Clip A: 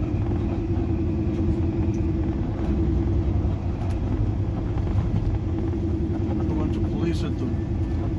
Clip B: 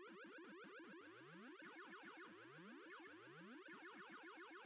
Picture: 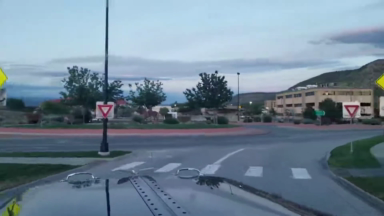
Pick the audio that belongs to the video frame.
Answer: A